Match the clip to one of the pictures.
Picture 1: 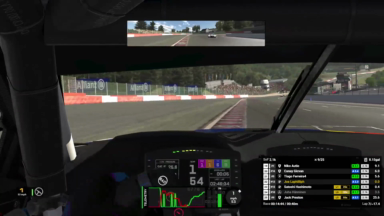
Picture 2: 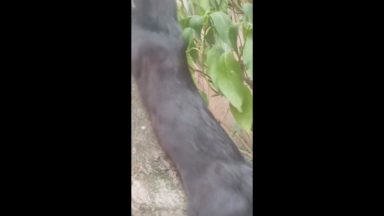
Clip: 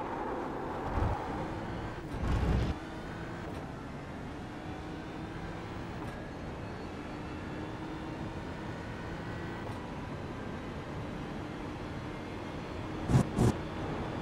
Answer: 1